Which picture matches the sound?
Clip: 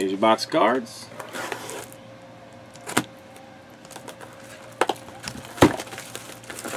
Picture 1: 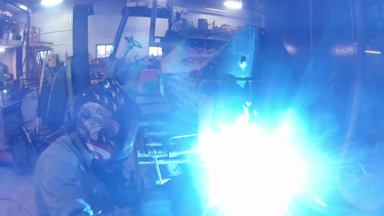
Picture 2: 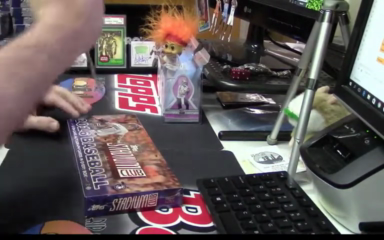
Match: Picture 2